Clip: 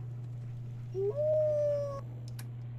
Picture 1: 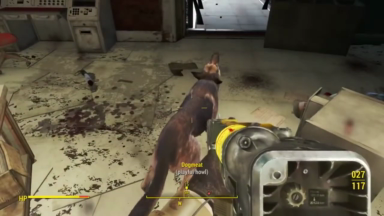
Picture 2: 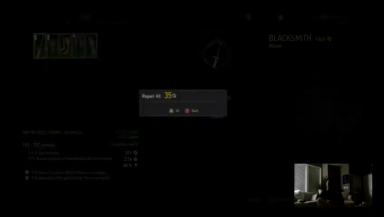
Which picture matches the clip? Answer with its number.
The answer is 1